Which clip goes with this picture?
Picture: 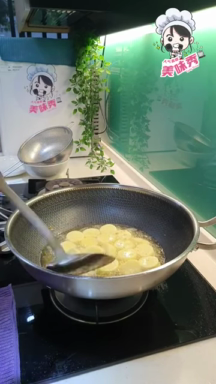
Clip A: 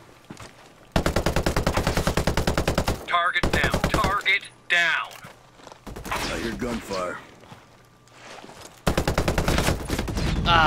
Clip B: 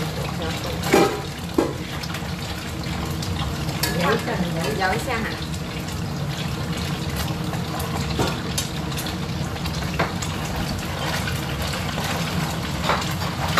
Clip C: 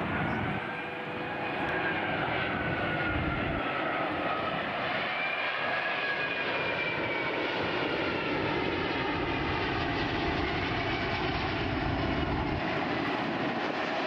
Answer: B